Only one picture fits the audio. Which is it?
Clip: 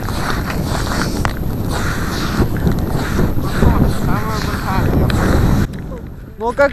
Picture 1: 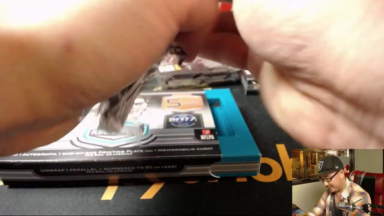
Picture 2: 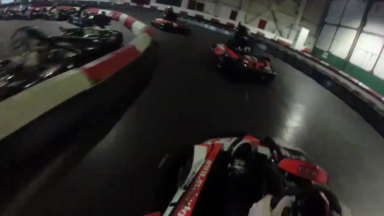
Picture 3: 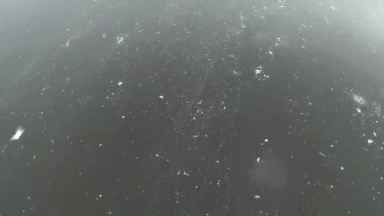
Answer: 3